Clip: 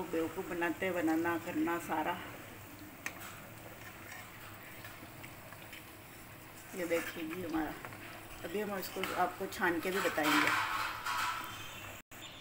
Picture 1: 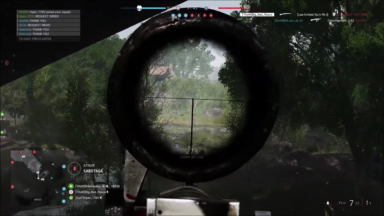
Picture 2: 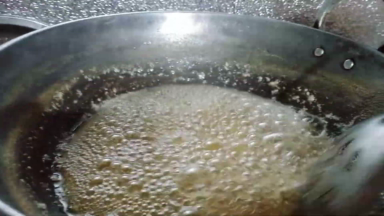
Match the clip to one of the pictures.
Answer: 2